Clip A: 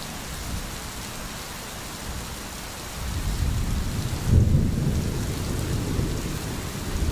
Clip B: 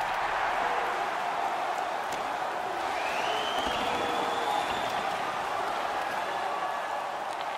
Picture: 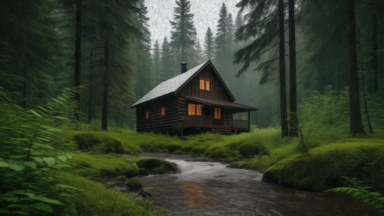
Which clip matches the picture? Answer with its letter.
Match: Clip A